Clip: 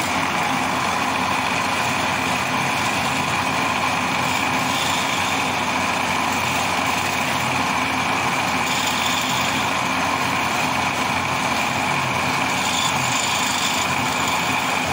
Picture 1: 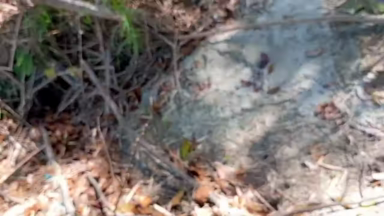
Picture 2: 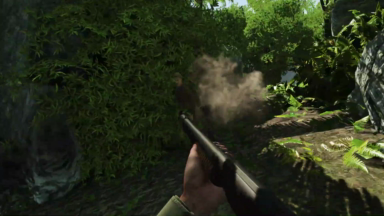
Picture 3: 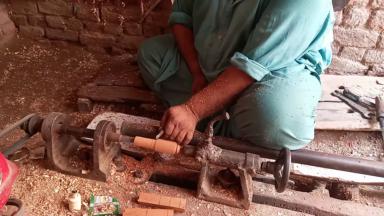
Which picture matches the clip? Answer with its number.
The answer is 3